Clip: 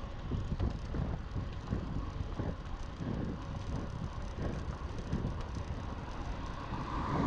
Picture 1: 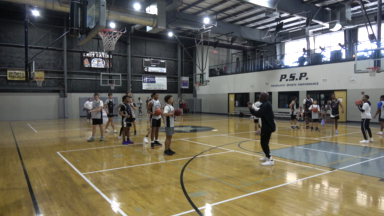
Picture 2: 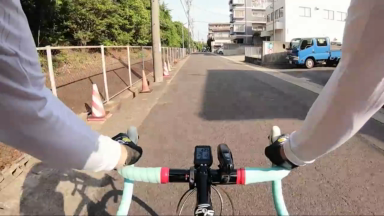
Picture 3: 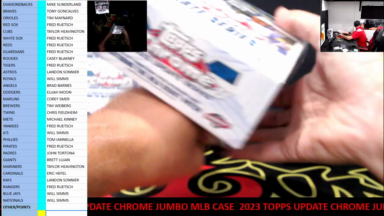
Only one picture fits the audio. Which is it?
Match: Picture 2